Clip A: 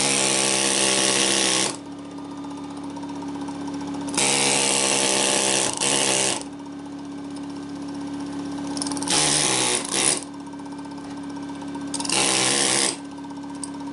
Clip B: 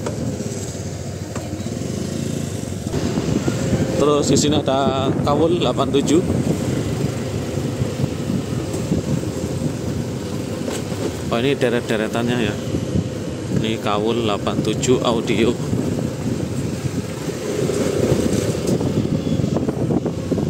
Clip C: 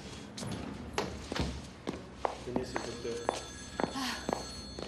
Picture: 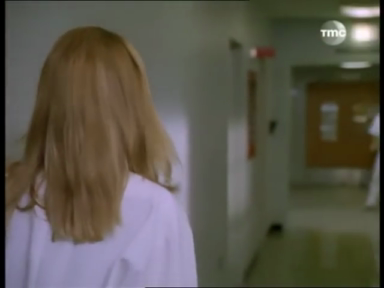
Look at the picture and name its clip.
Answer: C